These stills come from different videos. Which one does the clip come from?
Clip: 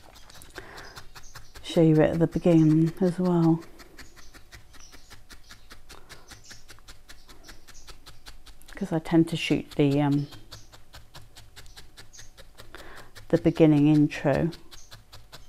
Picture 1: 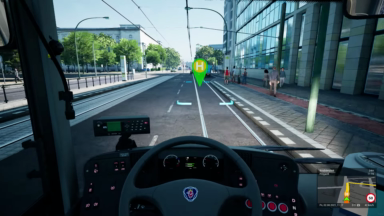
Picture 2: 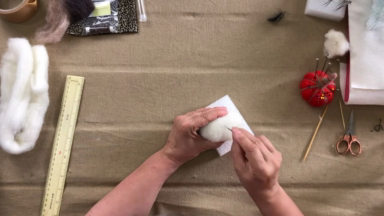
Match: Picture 2